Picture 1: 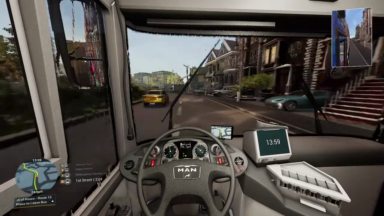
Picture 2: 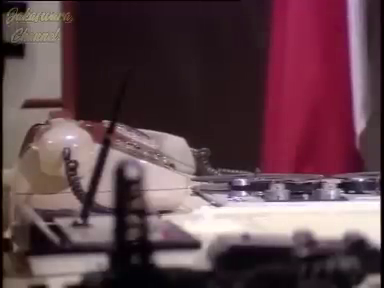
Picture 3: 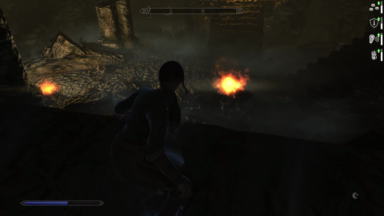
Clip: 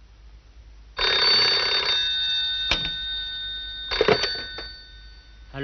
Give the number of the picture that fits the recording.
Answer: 2